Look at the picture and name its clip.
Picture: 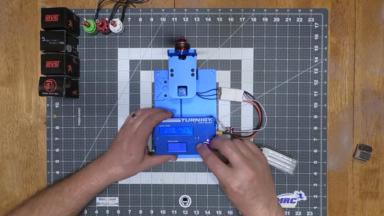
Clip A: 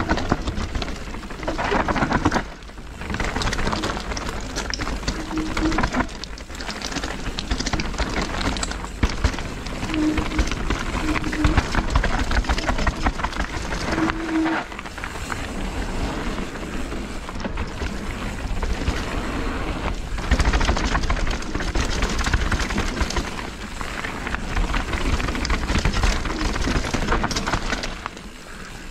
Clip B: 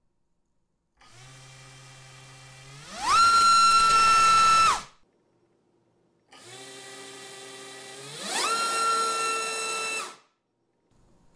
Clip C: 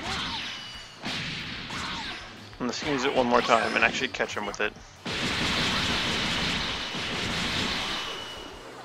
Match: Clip B